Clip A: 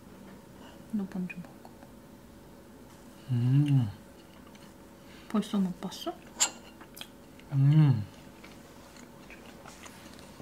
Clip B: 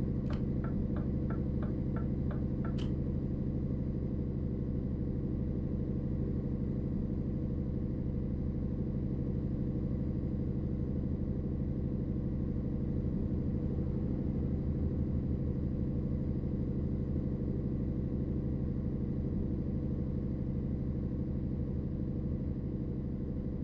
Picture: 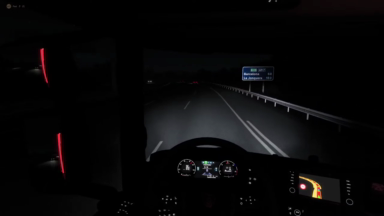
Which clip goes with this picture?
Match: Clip B